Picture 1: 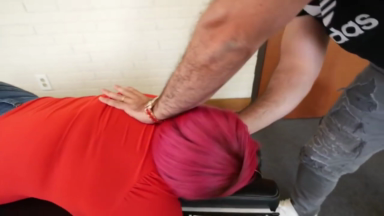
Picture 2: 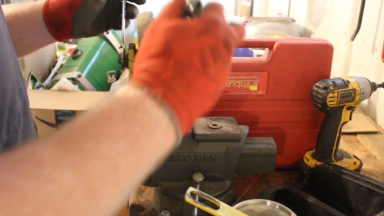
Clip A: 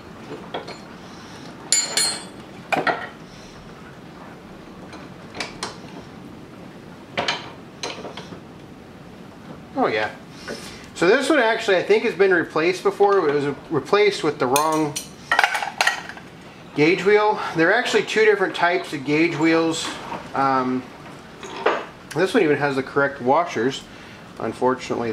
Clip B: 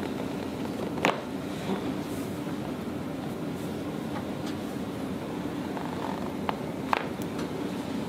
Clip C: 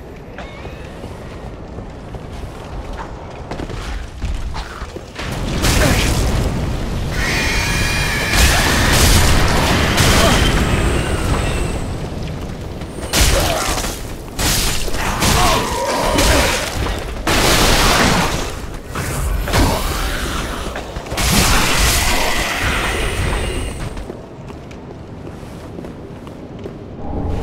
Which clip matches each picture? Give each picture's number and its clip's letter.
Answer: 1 B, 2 A